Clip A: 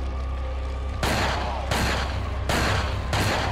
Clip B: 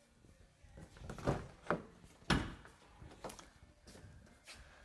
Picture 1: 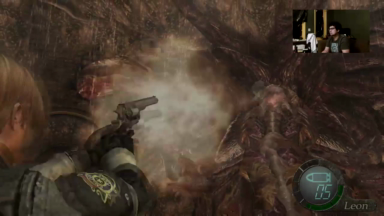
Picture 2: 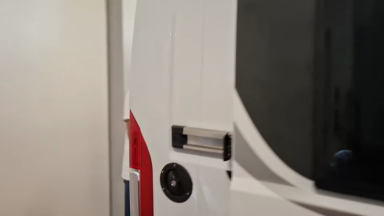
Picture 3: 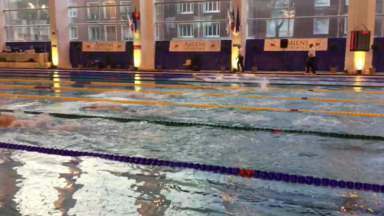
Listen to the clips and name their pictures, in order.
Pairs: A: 1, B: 2